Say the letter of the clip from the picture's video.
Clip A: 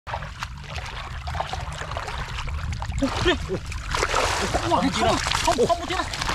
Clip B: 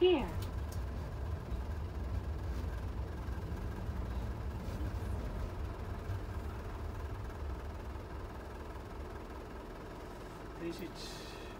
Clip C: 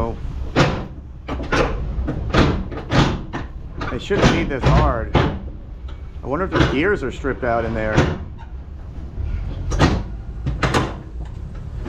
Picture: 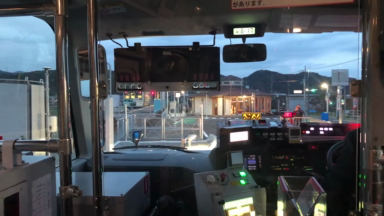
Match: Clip B